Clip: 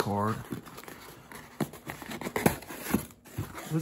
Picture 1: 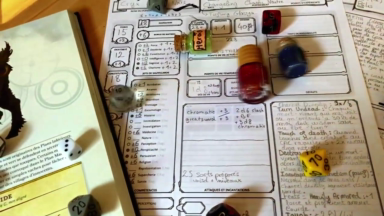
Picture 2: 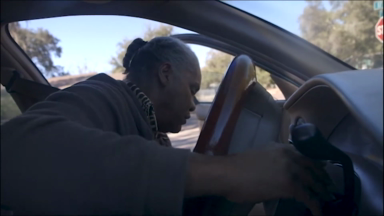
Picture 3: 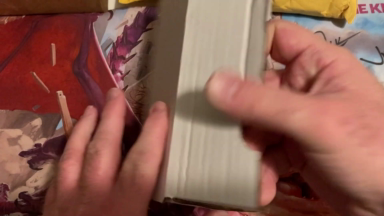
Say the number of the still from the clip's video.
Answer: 3